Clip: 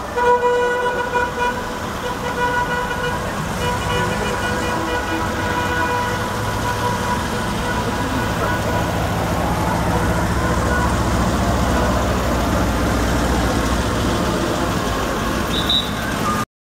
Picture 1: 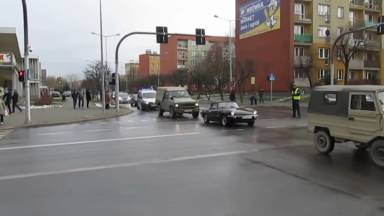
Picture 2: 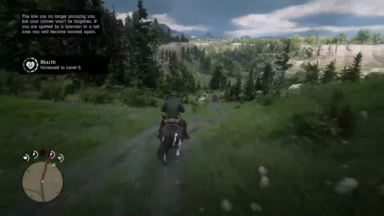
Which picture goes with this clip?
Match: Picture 1